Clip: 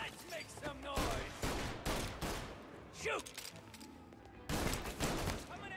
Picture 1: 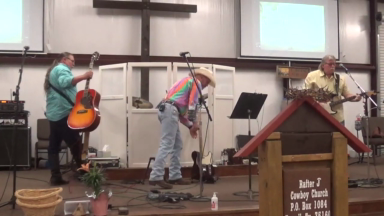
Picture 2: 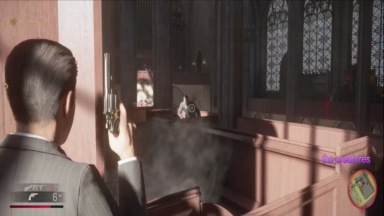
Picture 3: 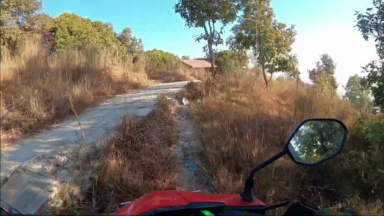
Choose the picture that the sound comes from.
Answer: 2